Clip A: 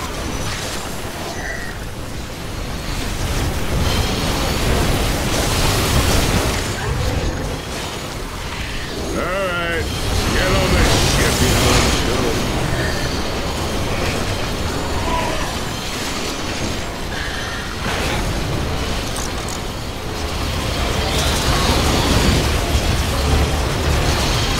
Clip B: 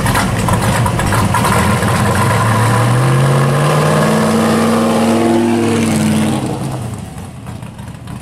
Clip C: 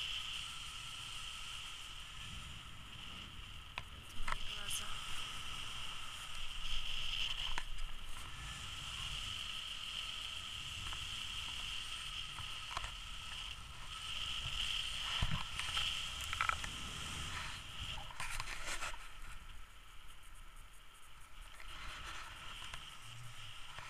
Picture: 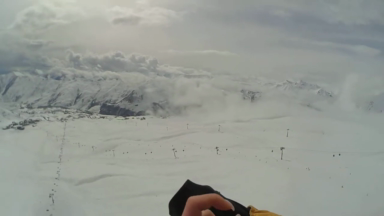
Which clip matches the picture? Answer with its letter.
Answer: C